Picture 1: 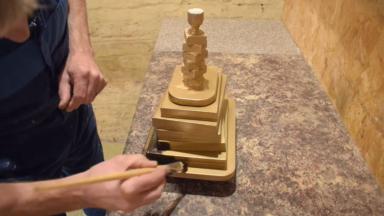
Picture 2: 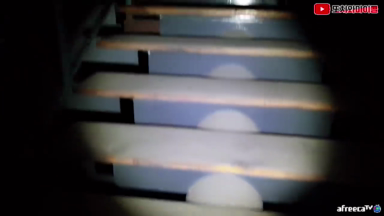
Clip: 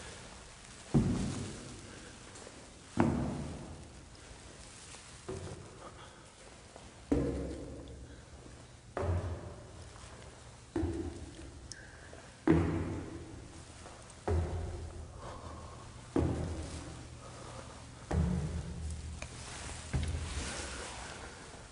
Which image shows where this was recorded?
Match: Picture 2